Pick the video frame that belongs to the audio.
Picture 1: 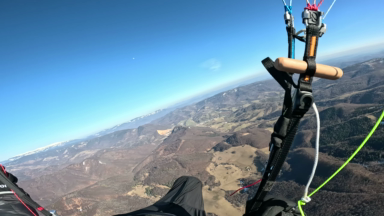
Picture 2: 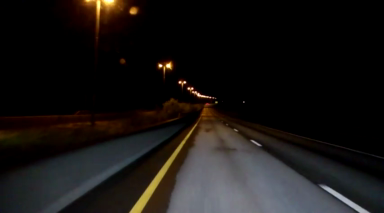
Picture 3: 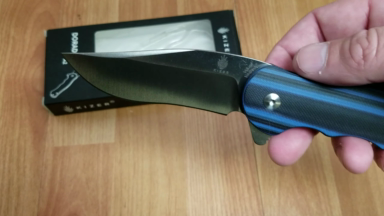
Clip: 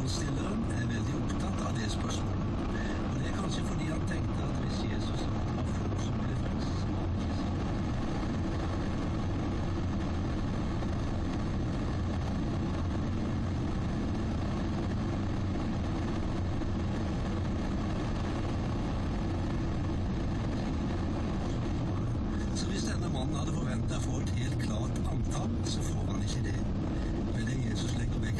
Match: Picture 2